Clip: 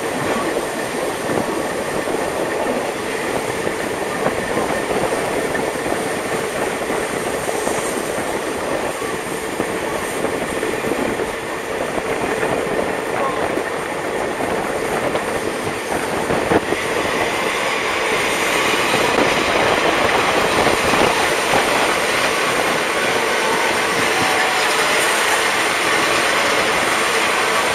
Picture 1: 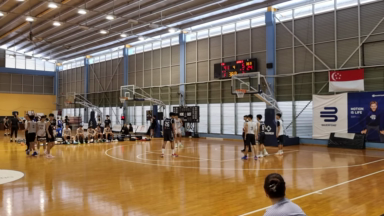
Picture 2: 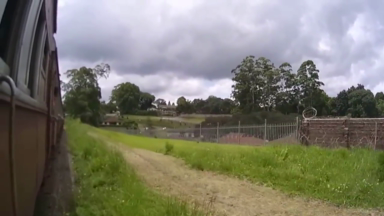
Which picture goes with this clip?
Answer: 2